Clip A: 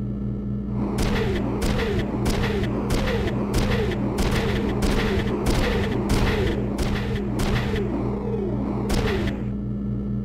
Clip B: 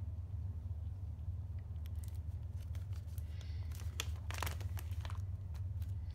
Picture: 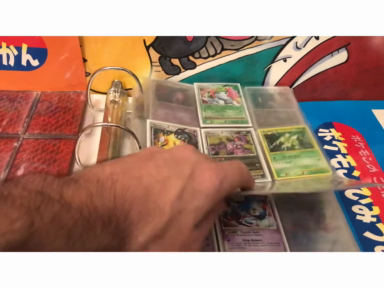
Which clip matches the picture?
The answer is B